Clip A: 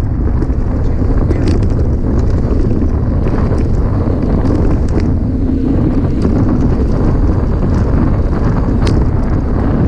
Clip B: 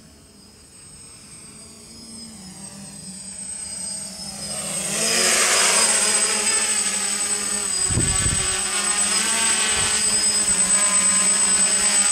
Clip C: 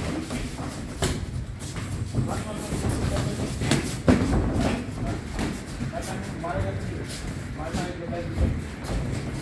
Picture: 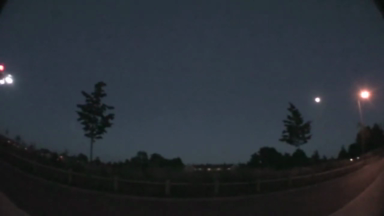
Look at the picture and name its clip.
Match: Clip B